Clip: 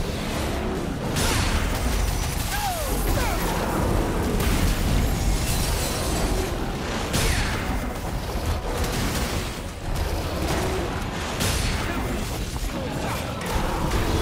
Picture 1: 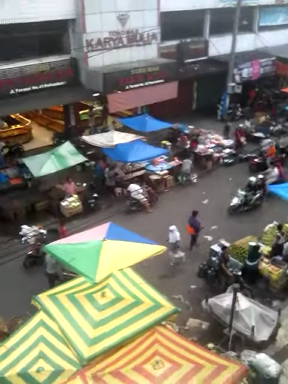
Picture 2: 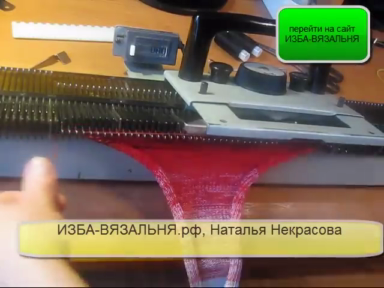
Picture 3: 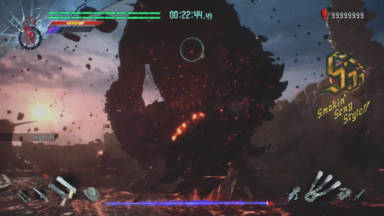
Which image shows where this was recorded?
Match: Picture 3